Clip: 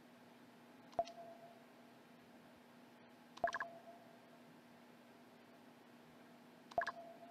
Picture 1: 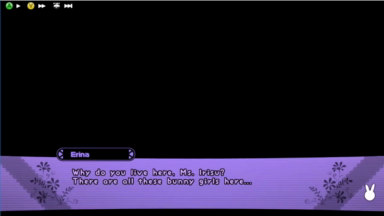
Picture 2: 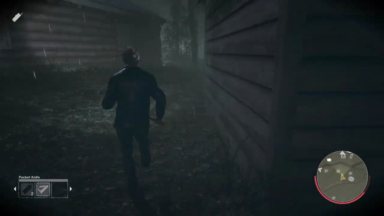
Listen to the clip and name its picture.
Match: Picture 1